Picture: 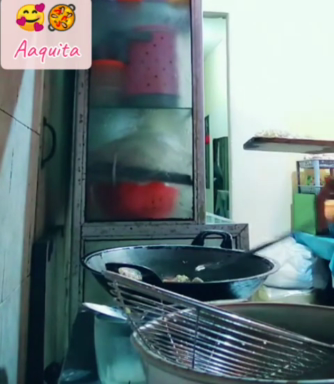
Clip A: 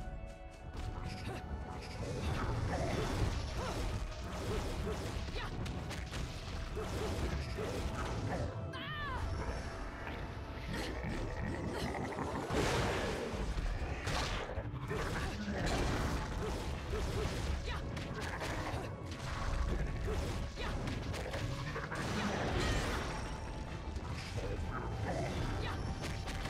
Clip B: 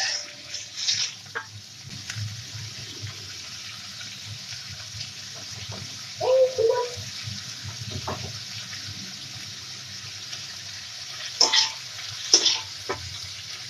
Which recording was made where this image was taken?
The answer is B